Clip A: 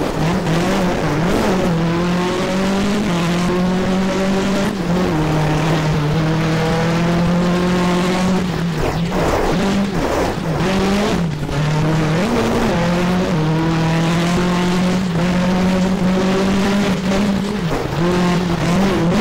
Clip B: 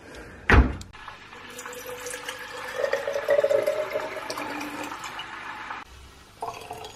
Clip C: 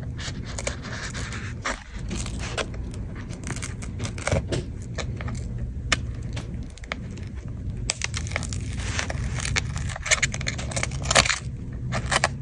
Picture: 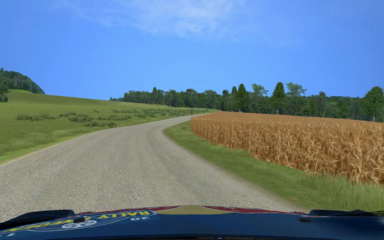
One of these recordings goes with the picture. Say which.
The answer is A